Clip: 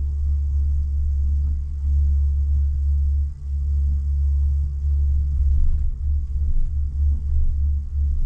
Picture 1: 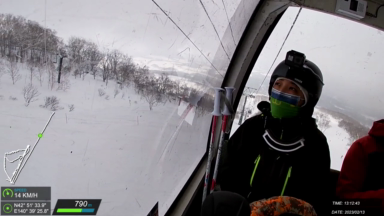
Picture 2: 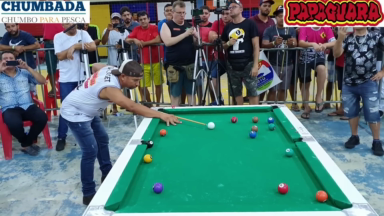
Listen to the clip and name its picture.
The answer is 1